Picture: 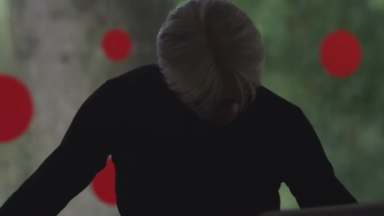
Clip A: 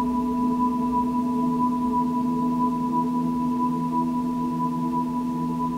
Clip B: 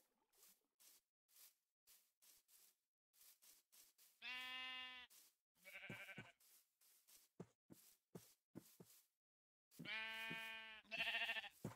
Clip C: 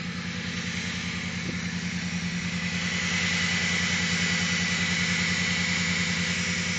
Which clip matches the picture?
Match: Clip A